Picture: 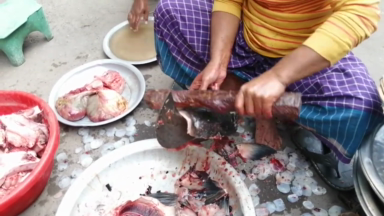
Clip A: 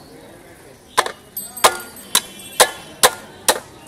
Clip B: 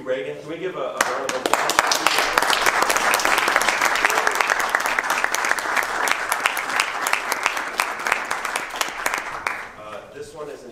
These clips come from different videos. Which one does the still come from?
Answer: A